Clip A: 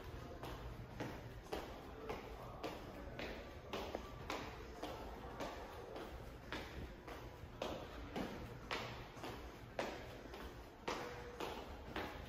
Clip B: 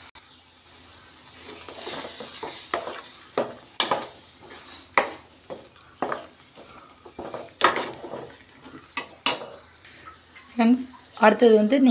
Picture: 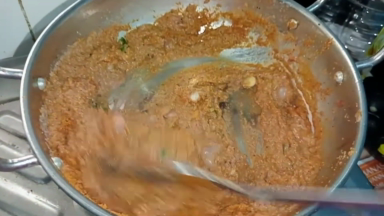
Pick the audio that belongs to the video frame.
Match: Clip B